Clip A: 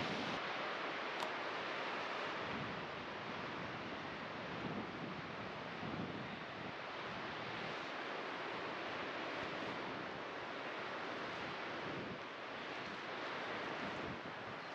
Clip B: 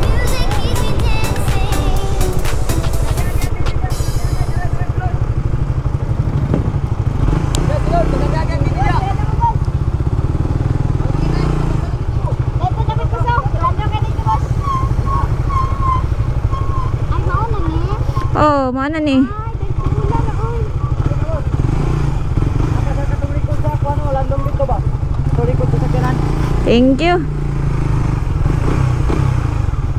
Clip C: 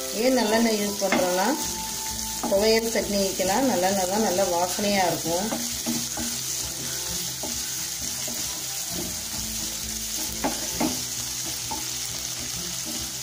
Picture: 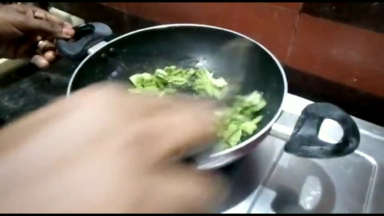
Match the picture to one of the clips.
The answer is C